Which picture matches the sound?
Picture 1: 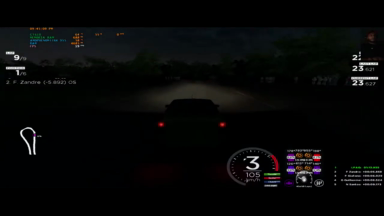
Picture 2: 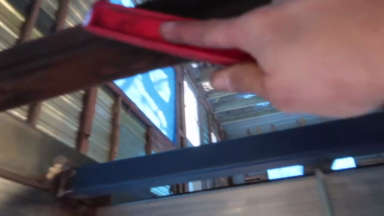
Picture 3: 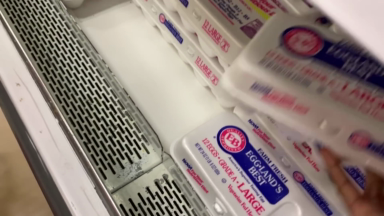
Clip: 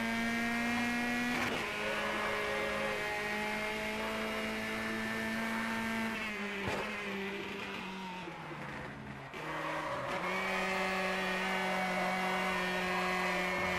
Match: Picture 1